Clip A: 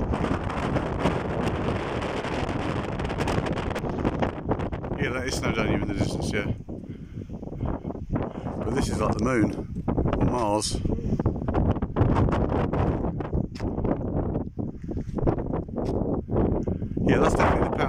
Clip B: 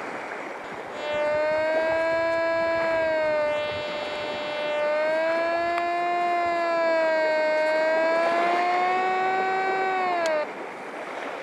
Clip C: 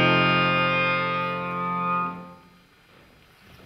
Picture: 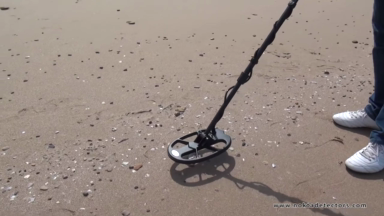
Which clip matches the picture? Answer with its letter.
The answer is B